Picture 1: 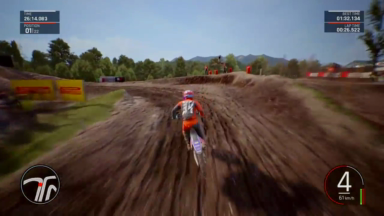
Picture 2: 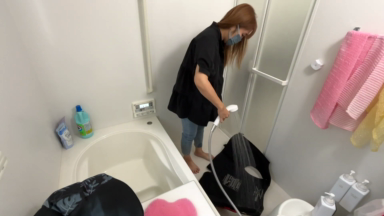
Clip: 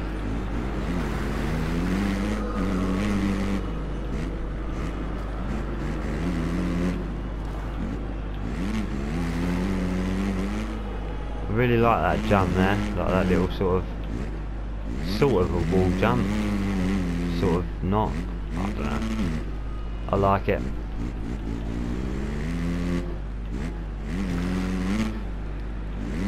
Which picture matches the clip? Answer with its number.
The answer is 1